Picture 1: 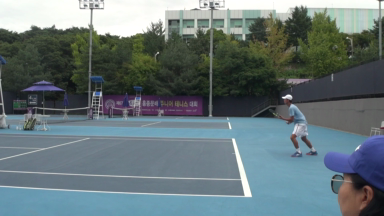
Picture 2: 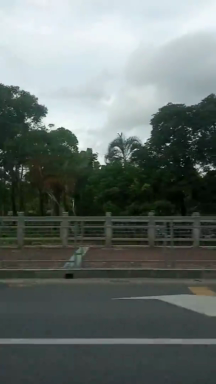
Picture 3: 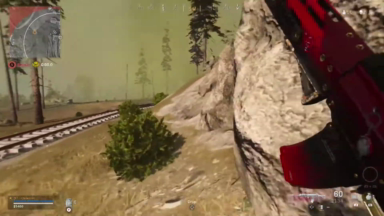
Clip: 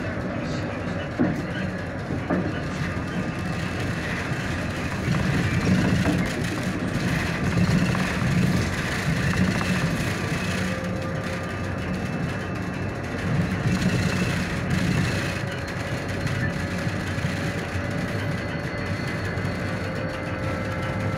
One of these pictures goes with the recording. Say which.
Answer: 2